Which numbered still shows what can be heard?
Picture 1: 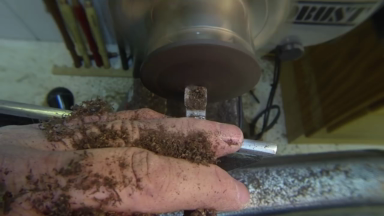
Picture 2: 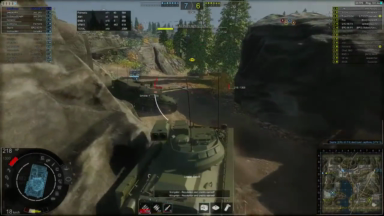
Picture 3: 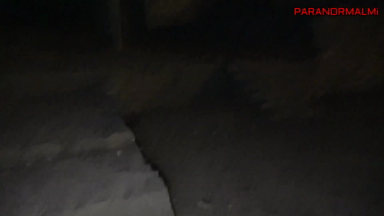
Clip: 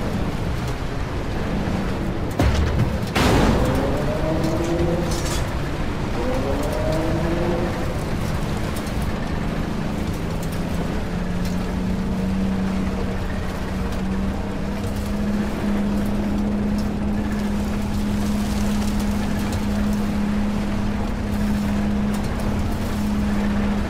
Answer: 2